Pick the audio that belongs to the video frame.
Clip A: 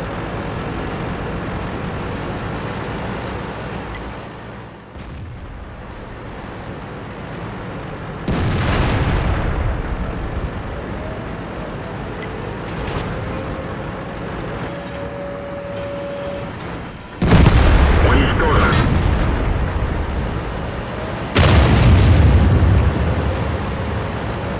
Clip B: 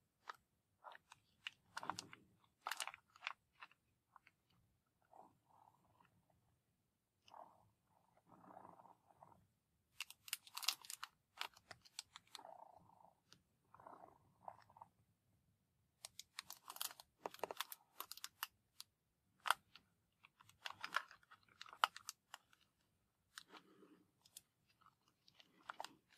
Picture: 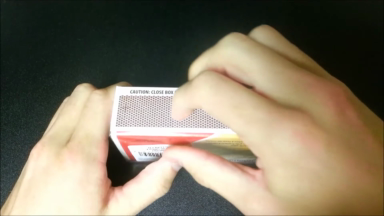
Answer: B